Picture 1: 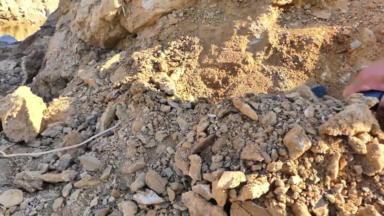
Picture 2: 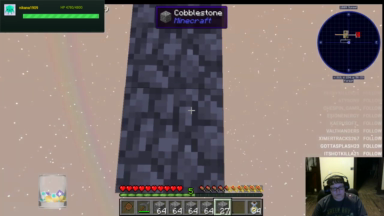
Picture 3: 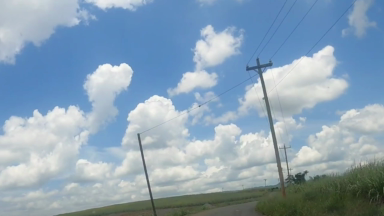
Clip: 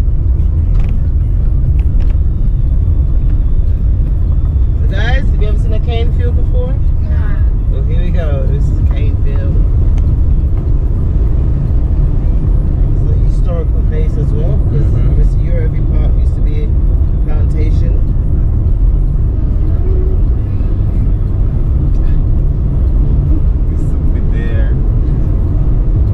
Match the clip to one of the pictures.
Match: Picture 3